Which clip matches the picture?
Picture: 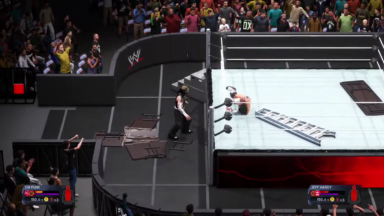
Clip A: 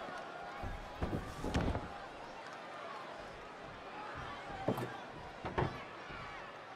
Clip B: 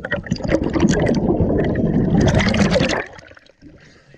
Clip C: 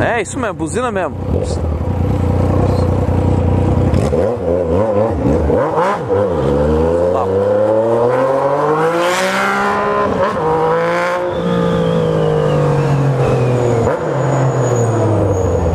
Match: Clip A